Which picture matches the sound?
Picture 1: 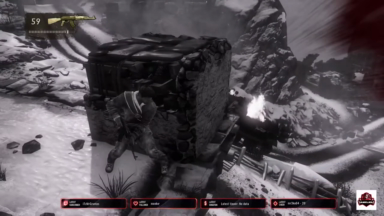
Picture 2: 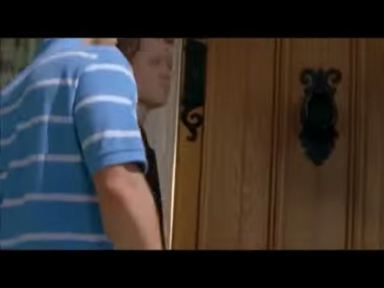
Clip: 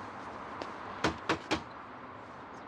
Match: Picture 2